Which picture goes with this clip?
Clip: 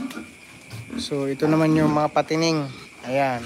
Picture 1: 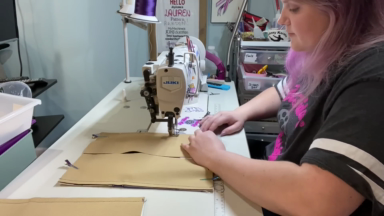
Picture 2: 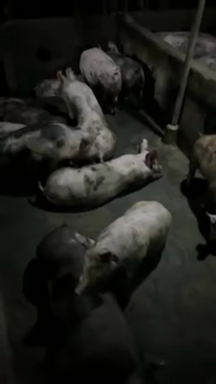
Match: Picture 2